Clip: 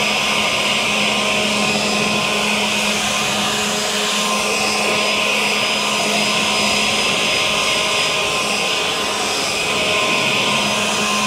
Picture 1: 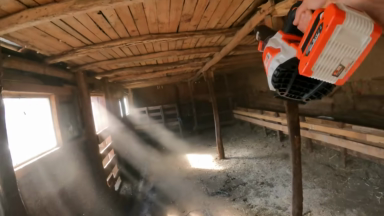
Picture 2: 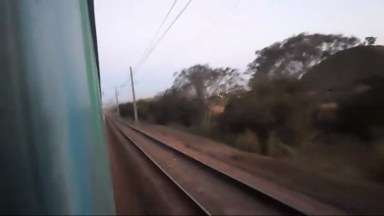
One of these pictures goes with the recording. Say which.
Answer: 1